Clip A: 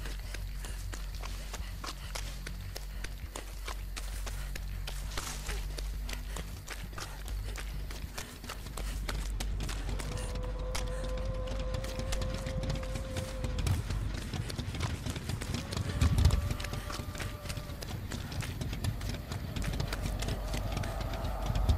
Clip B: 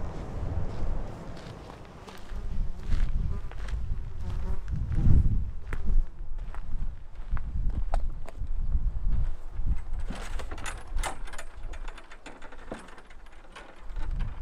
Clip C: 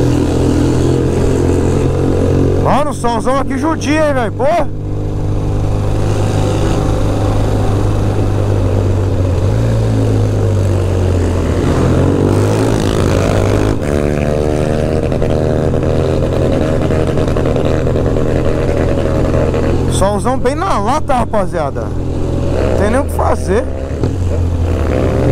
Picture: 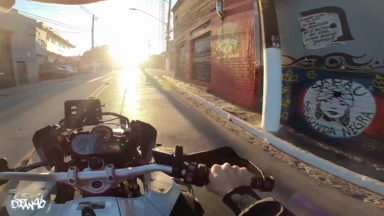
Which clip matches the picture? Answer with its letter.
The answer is C